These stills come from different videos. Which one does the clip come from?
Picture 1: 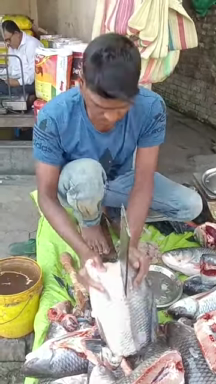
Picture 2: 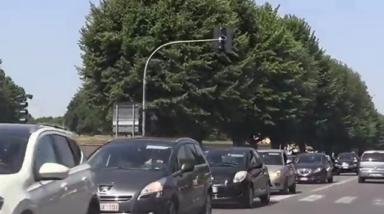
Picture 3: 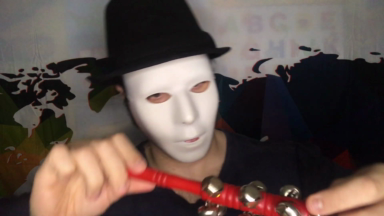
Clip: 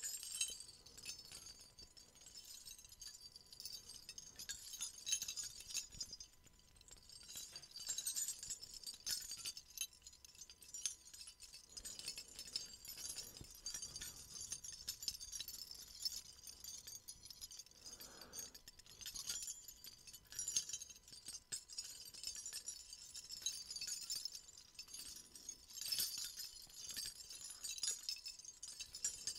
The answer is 3